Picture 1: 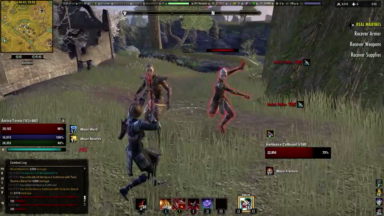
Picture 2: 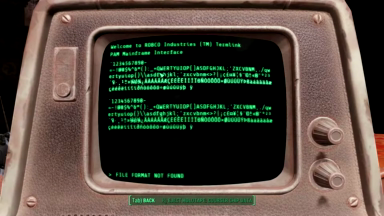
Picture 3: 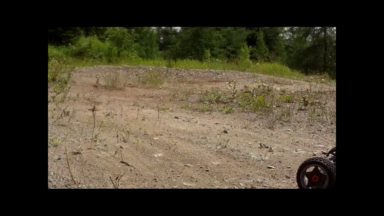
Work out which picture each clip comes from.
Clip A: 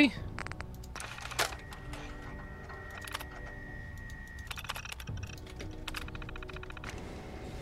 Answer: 2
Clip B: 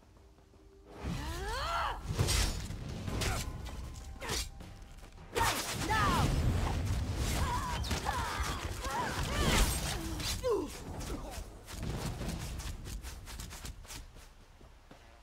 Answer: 1